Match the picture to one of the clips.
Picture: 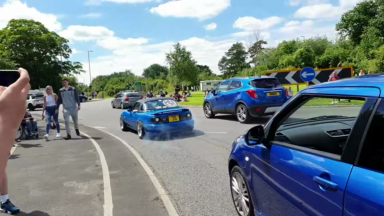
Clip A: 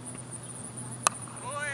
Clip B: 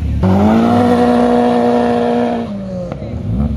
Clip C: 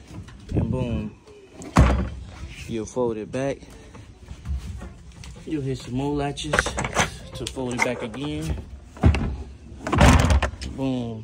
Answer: B